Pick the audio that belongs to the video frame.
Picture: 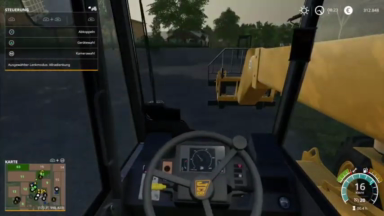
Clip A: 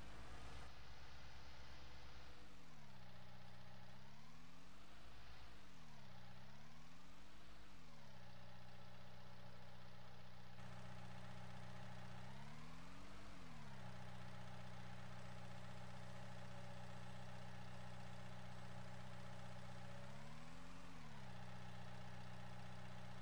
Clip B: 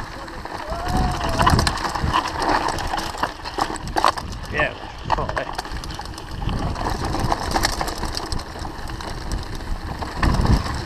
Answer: A